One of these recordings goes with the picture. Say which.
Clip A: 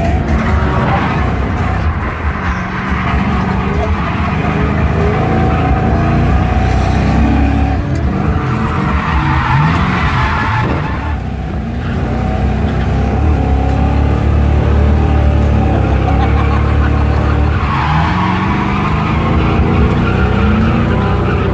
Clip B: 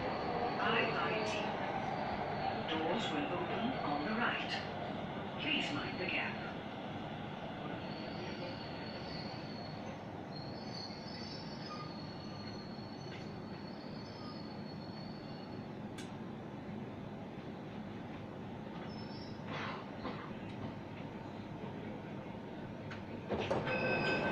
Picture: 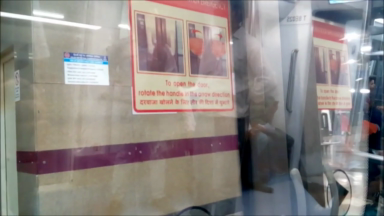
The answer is B